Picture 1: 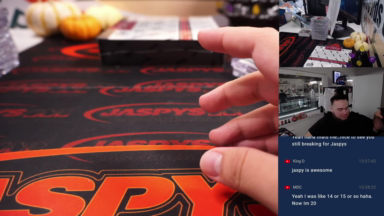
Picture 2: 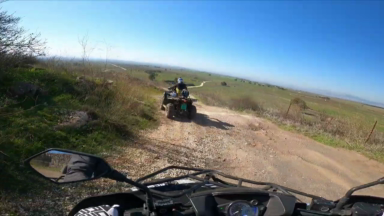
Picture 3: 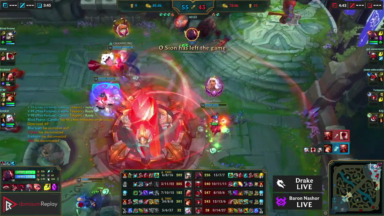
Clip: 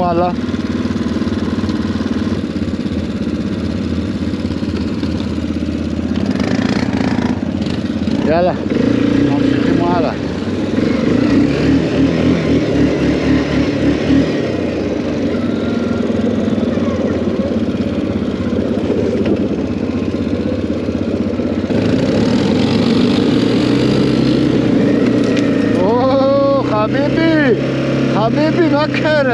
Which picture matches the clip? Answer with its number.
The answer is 2